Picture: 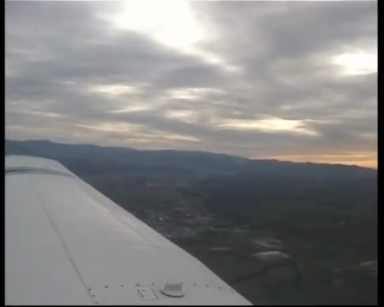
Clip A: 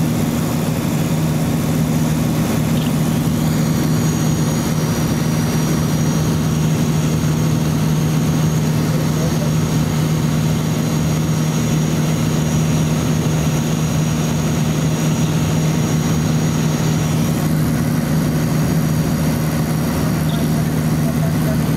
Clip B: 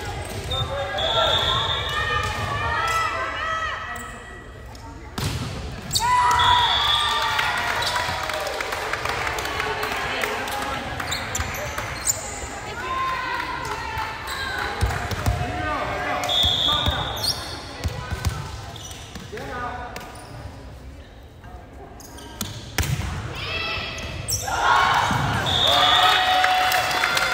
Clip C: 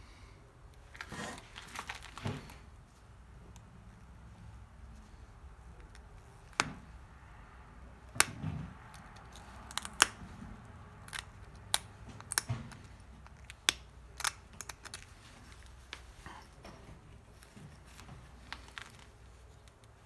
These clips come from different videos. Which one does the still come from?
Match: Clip A